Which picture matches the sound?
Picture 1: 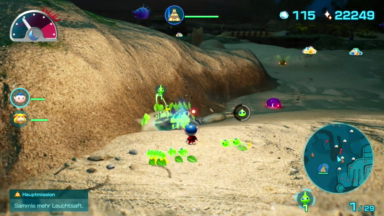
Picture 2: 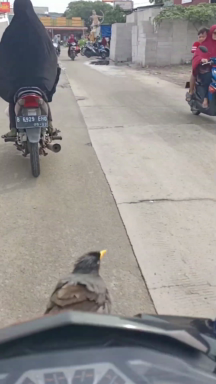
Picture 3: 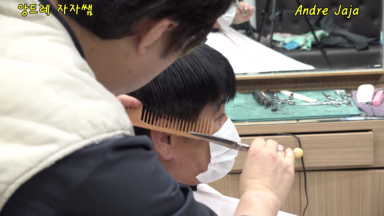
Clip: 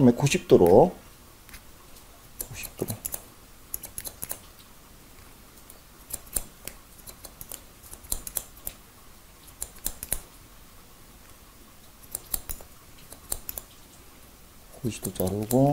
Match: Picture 3